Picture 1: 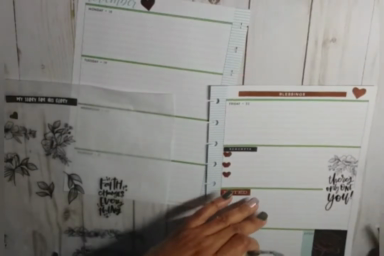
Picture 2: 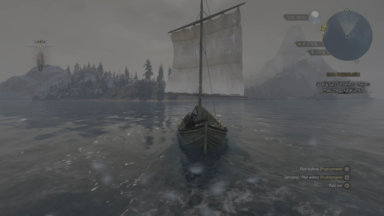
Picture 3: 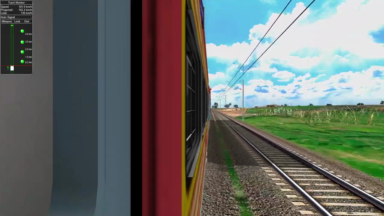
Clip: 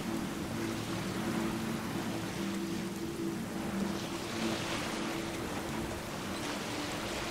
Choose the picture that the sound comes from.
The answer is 2